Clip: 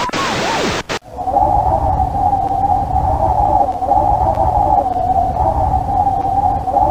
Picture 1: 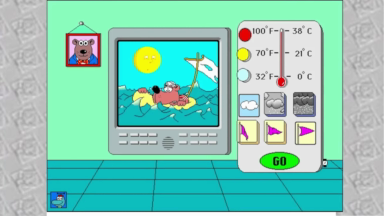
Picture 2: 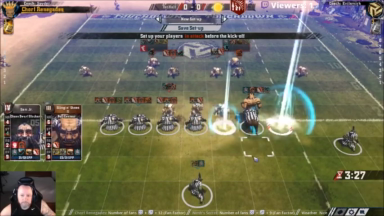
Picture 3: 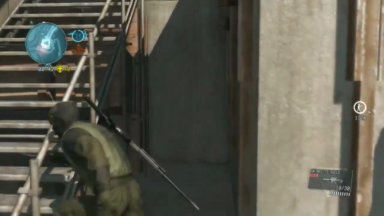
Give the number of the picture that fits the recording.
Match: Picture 1